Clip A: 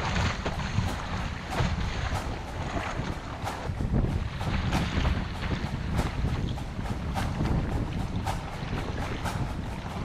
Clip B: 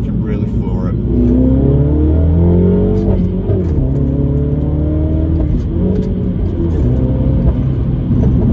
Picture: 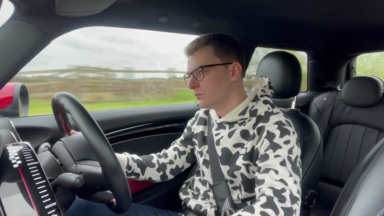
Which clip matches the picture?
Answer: B